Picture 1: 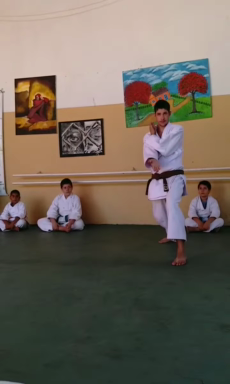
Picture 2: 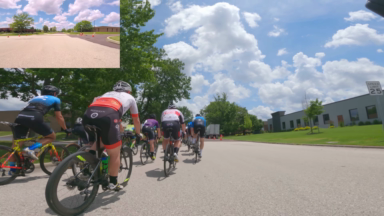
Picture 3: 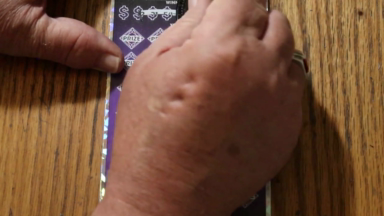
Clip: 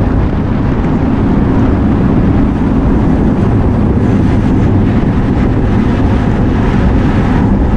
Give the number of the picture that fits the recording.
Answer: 2